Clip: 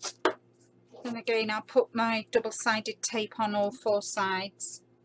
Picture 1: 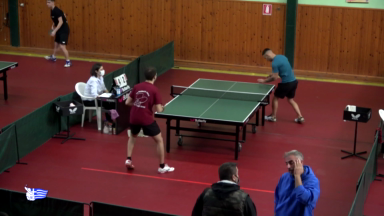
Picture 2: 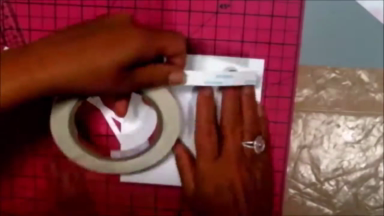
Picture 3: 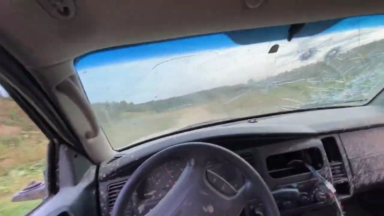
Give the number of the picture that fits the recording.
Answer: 2